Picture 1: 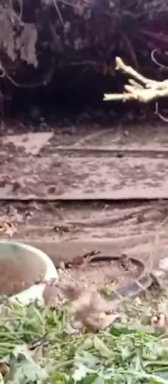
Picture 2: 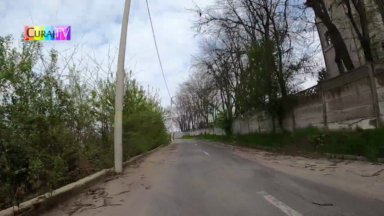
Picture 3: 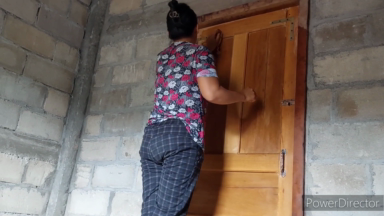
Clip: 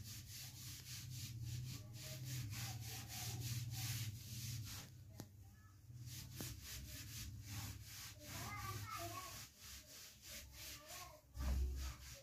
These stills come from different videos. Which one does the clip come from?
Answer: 3